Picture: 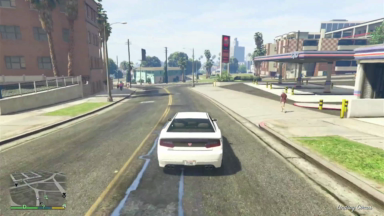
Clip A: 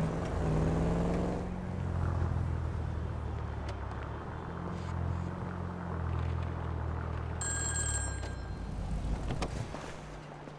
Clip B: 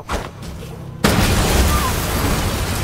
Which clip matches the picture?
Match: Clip A